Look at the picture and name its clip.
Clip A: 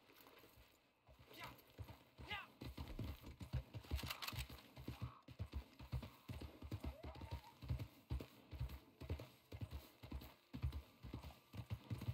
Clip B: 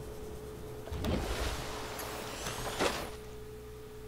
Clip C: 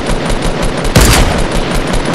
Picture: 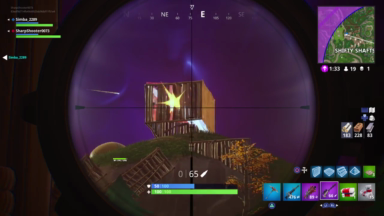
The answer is C